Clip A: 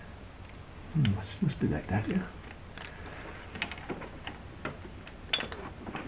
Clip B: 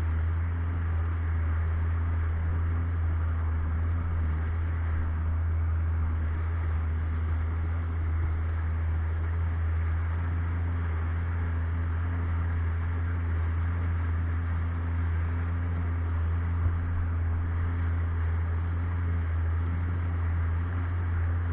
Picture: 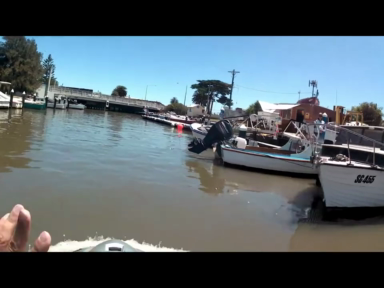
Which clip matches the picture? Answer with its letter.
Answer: B